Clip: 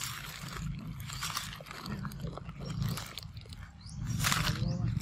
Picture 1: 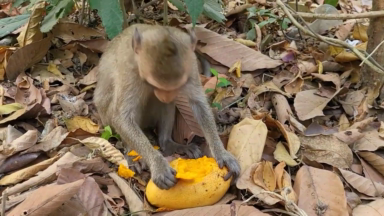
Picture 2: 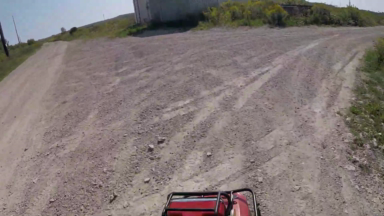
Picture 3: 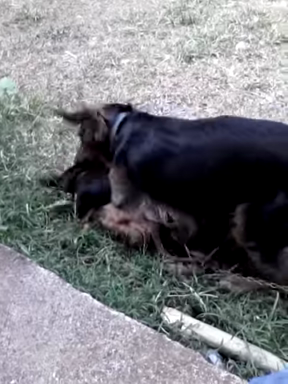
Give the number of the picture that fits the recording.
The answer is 1